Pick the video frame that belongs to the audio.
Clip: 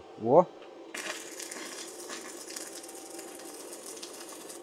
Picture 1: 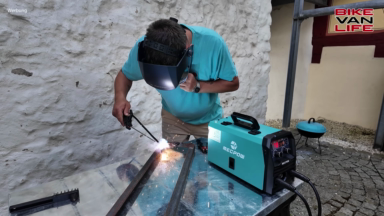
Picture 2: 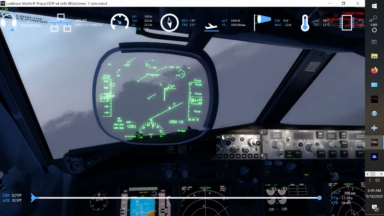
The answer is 1